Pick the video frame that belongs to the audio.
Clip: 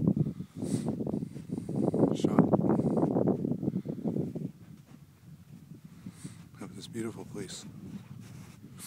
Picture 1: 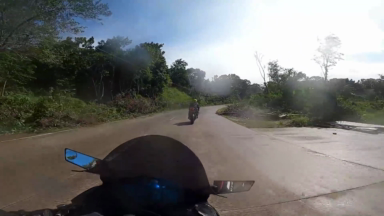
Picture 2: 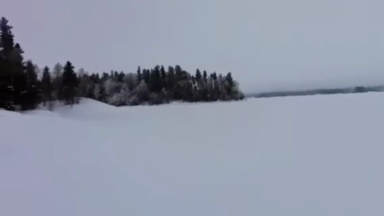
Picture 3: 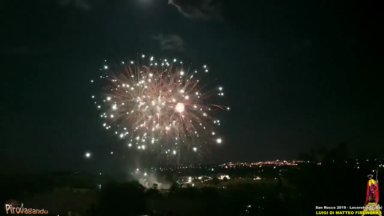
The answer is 2